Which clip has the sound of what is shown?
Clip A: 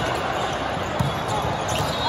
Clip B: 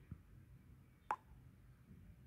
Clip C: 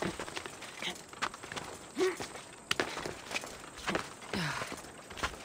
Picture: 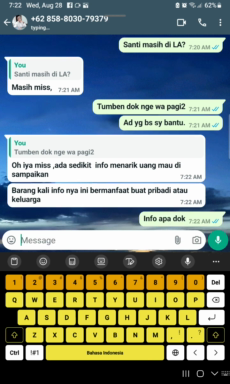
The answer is B